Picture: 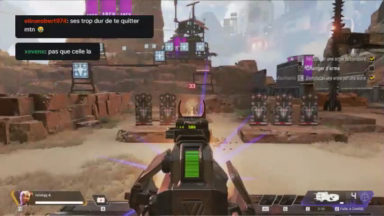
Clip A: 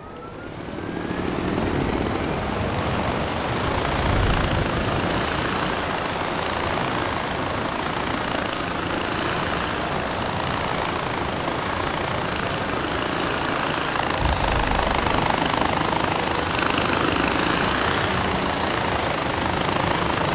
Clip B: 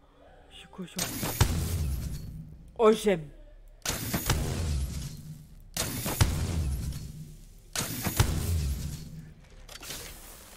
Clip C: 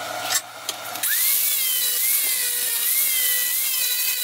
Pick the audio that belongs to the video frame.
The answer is B